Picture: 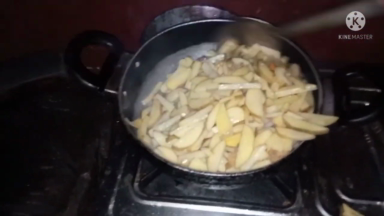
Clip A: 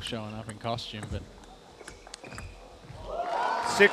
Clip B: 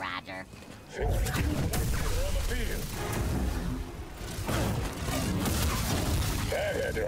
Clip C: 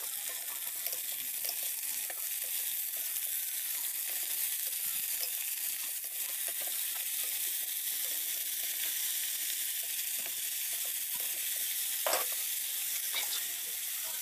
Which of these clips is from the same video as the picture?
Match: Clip C